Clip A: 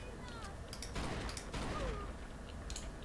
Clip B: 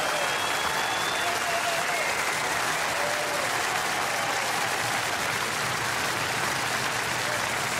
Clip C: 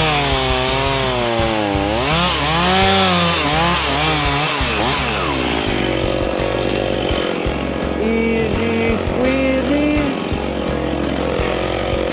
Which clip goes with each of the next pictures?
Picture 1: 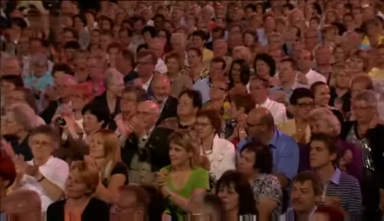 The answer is B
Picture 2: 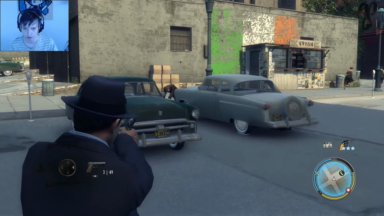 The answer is A